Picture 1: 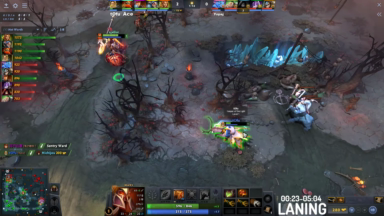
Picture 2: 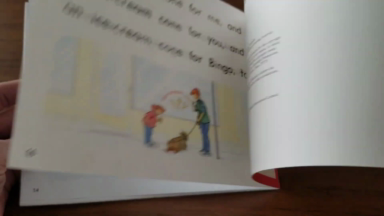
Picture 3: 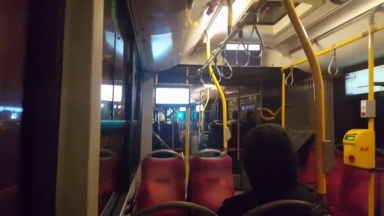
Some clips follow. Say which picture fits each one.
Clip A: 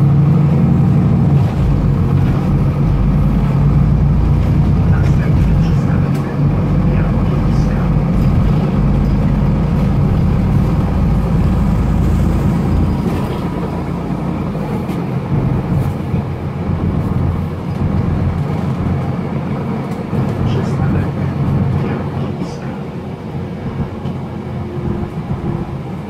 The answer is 3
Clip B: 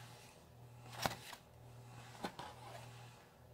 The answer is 2